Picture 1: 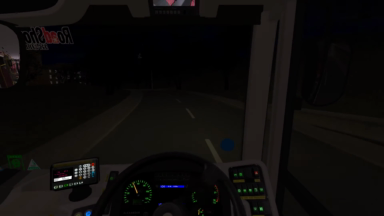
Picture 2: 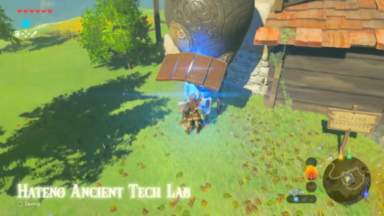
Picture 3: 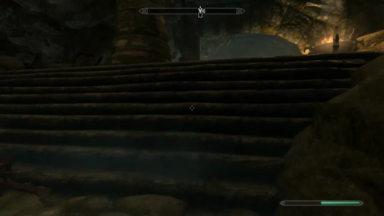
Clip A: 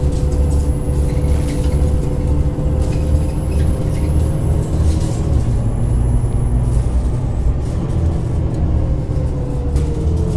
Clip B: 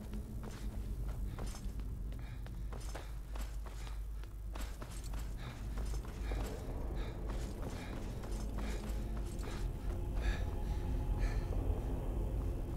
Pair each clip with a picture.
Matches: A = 1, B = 3